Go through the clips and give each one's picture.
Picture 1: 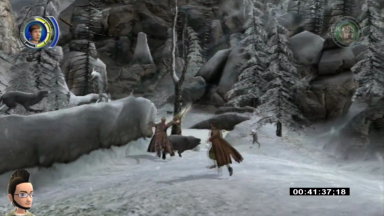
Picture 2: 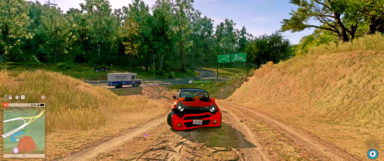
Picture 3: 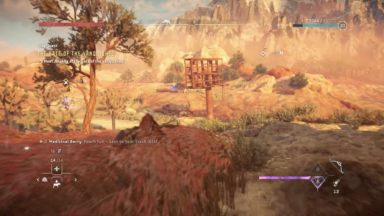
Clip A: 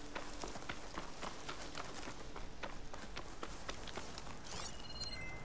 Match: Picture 3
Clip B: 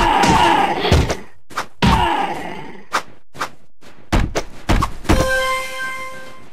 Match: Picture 1